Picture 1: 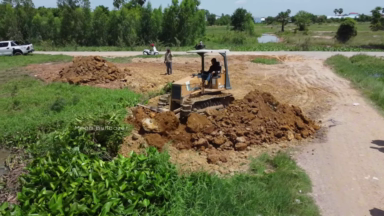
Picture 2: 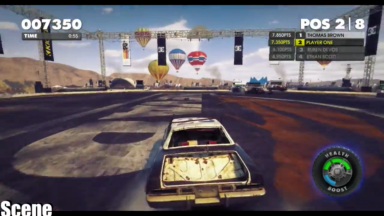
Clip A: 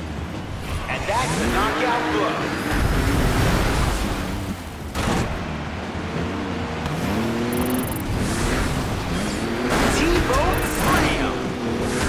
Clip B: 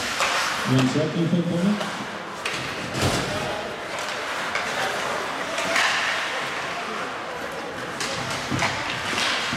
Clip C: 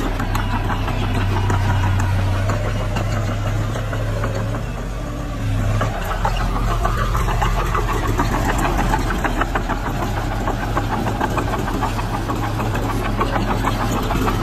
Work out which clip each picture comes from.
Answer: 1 C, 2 A